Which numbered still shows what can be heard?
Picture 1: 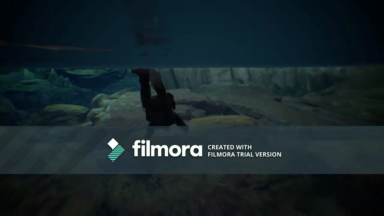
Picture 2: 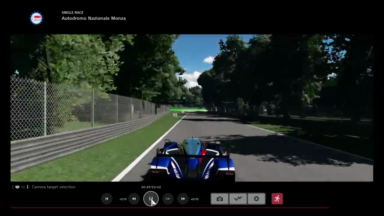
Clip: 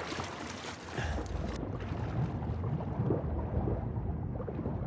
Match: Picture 1